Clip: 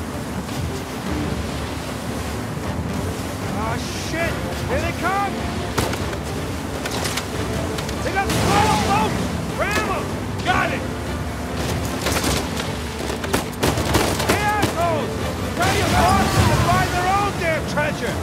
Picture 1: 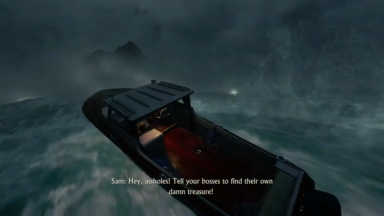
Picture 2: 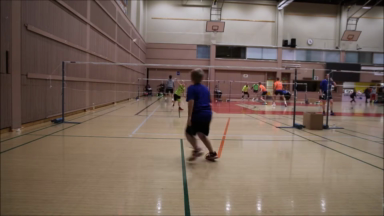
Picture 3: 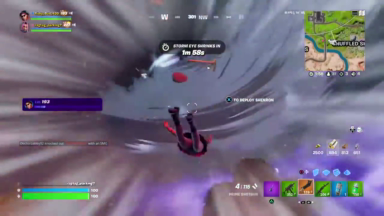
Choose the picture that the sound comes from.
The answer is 1